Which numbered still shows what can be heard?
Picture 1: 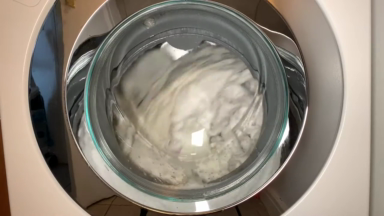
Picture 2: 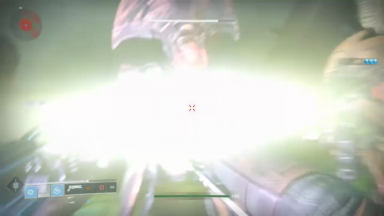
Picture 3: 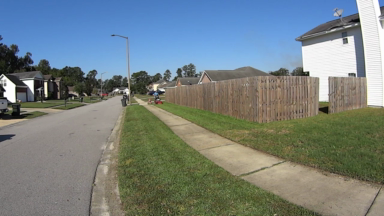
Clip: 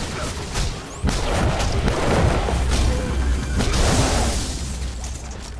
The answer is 2